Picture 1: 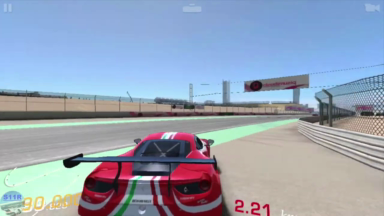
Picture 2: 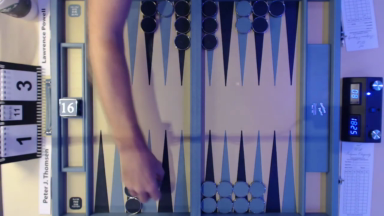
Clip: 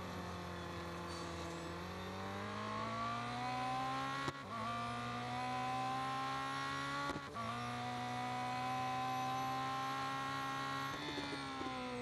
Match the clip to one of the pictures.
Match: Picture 1